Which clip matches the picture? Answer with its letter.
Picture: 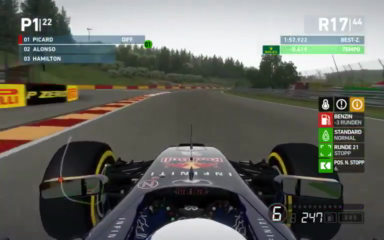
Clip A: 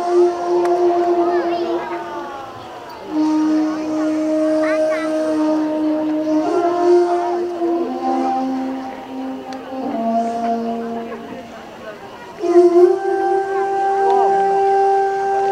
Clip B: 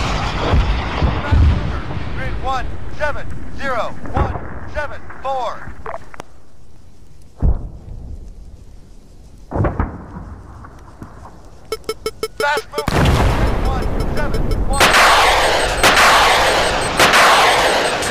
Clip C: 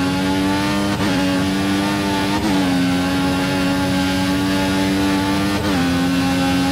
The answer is C